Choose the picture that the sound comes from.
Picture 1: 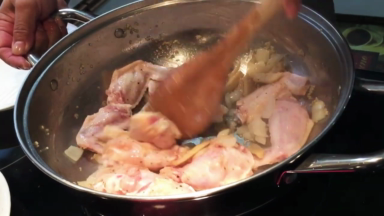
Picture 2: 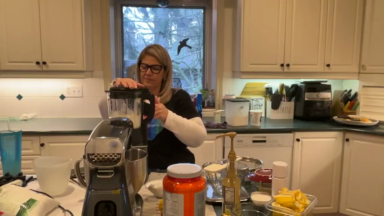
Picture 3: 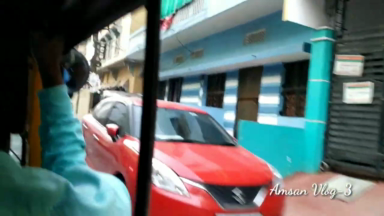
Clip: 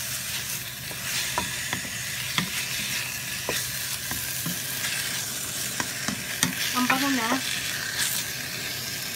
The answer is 1